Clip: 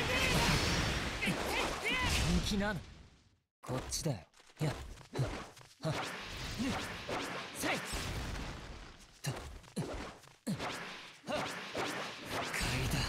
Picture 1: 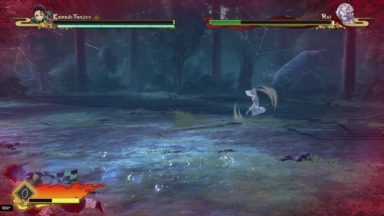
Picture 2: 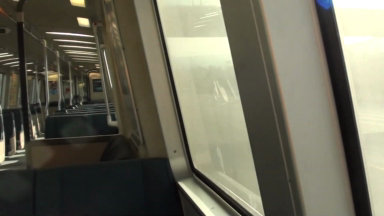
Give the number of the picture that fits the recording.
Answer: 1